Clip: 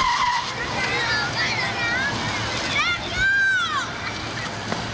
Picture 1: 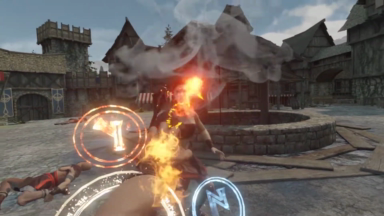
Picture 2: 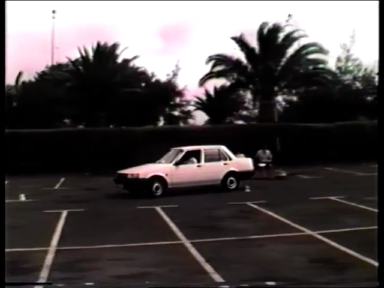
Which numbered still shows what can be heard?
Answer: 2